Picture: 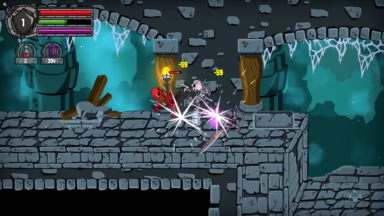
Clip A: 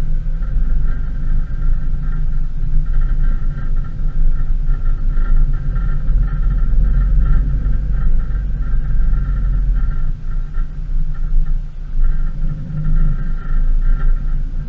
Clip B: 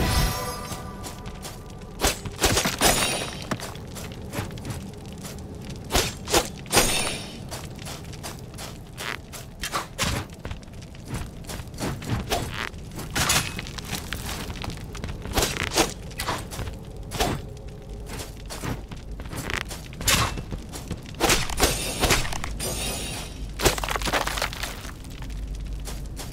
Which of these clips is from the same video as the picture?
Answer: B